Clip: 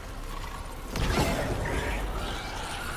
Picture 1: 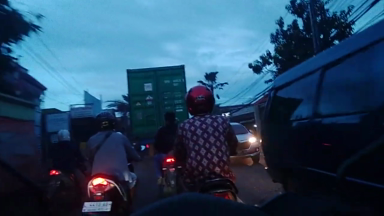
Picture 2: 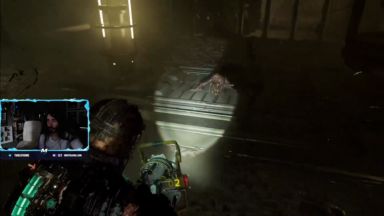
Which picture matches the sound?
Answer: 2